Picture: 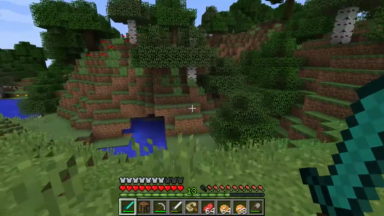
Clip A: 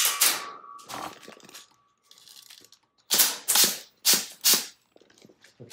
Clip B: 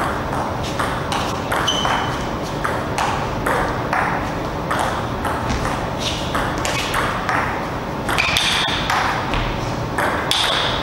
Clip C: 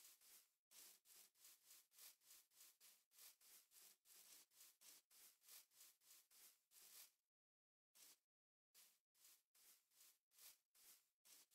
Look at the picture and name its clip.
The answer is C